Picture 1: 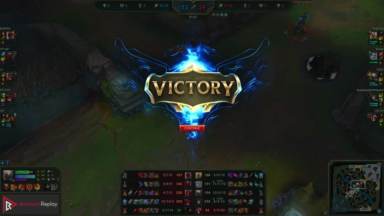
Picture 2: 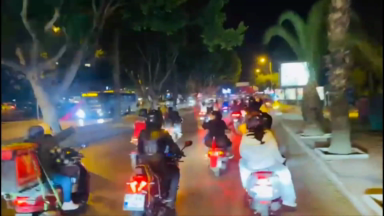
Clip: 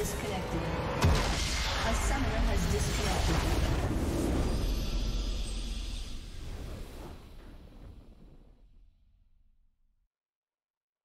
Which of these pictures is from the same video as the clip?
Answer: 1